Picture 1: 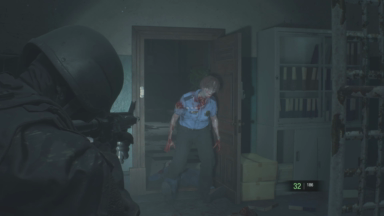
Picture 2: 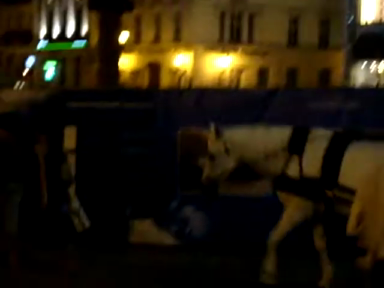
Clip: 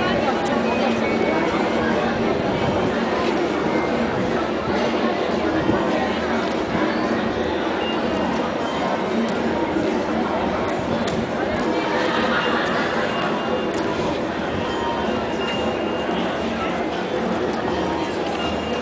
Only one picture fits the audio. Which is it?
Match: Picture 2